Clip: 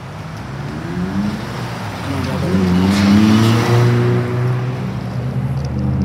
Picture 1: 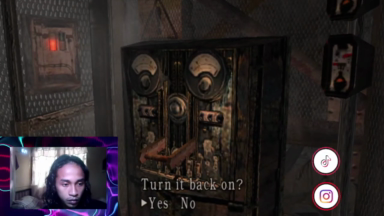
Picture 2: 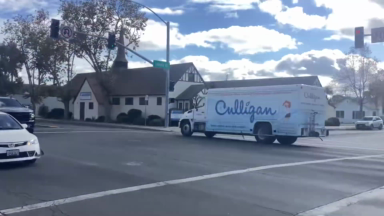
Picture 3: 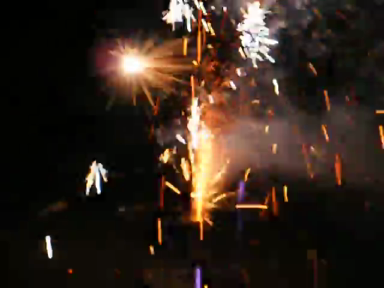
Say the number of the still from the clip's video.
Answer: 2